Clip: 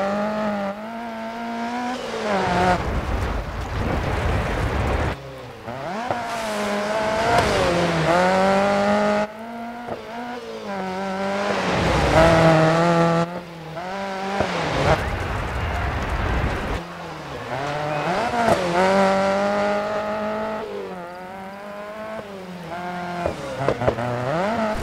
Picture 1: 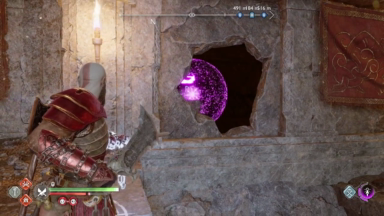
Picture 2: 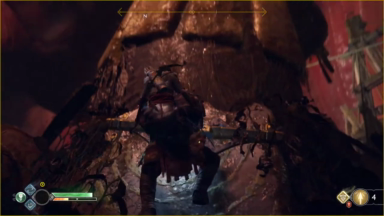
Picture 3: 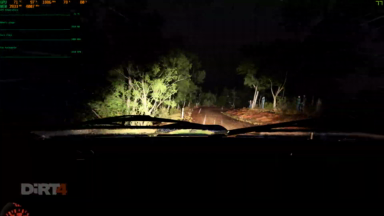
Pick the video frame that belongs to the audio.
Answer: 3